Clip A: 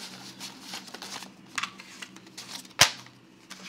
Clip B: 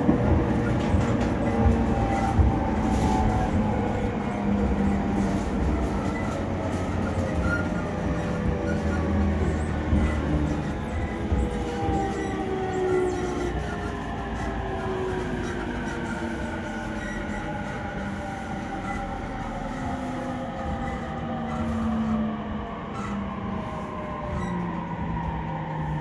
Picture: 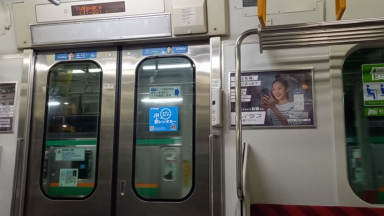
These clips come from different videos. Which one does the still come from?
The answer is B